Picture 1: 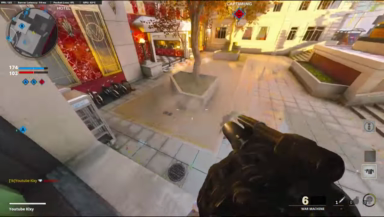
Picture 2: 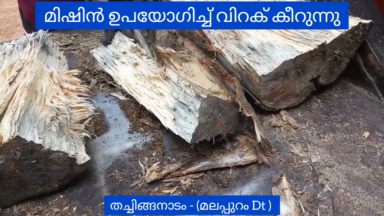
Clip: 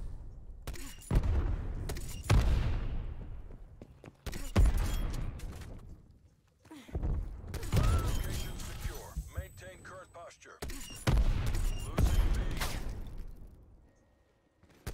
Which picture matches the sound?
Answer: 1